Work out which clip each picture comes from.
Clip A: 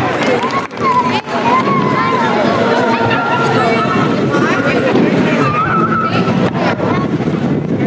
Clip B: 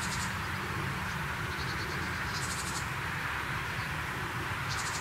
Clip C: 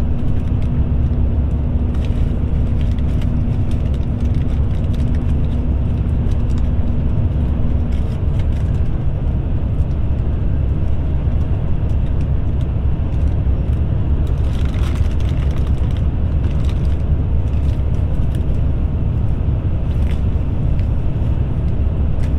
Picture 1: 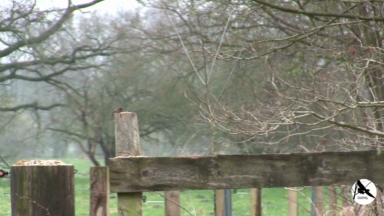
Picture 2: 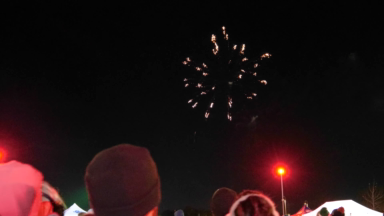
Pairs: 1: B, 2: A